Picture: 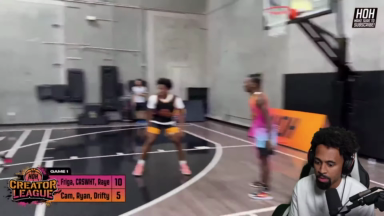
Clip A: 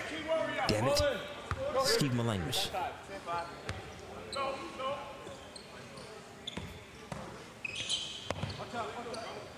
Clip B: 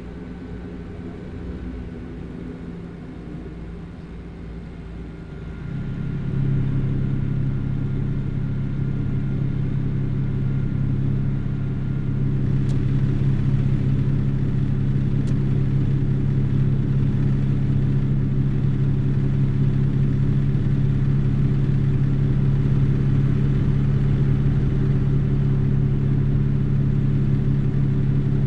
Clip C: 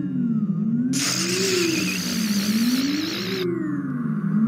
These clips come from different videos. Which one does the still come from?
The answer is A